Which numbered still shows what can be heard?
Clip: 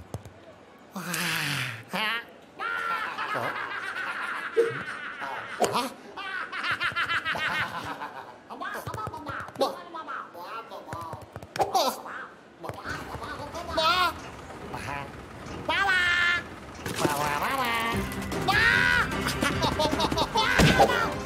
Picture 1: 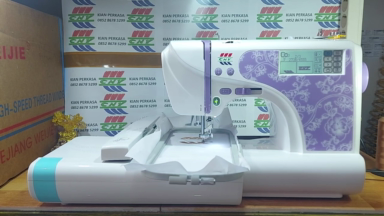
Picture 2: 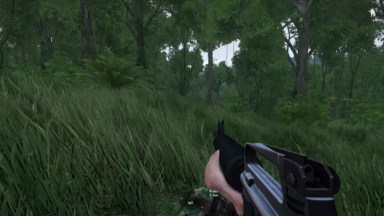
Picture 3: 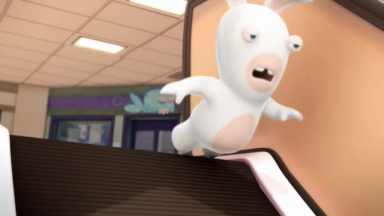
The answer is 3